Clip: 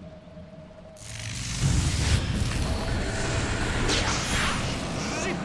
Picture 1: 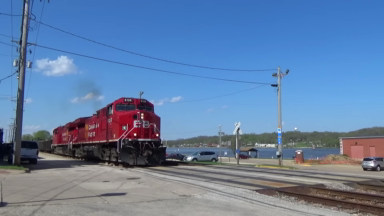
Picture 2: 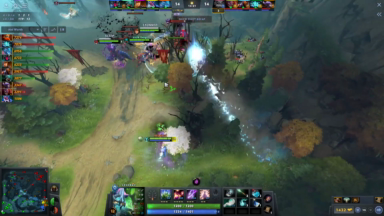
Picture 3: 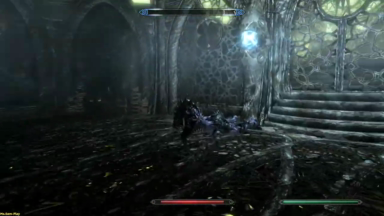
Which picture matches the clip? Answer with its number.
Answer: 2